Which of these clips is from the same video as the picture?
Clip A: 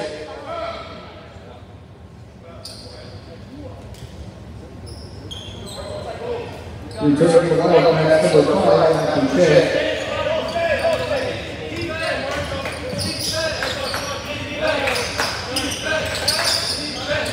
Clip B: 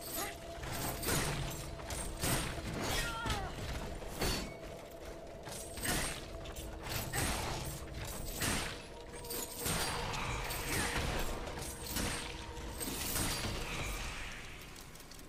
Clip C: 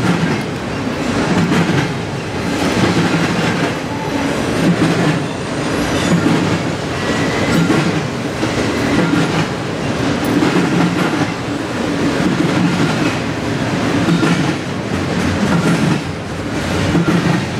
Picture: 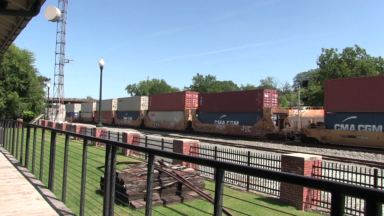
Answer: C